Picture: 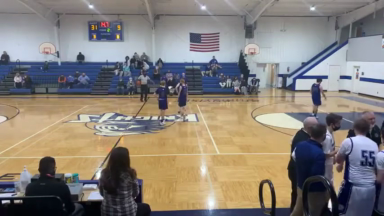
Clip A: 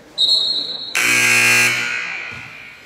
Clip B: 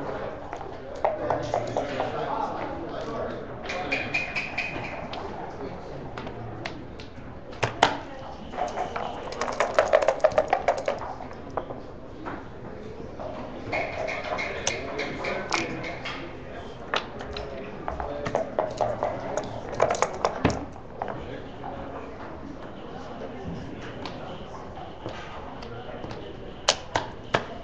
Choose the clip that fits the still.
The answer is A